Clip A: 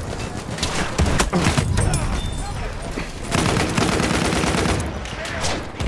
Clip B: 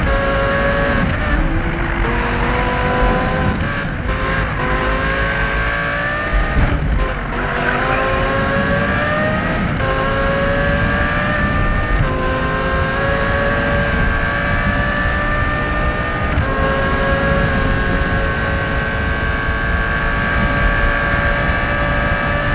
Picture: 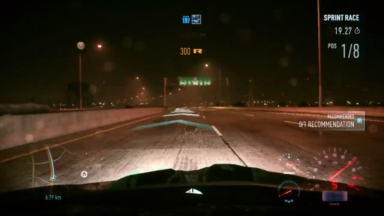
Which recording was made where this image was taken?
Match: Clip B